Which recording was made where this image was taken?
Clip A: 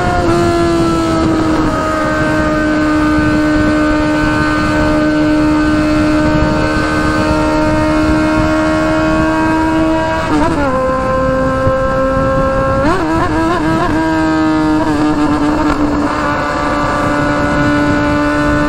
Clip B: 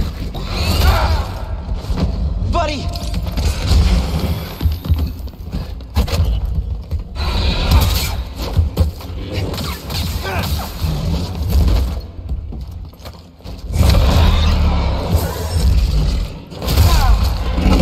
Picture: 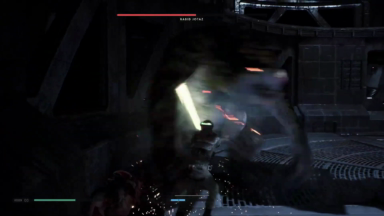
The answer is B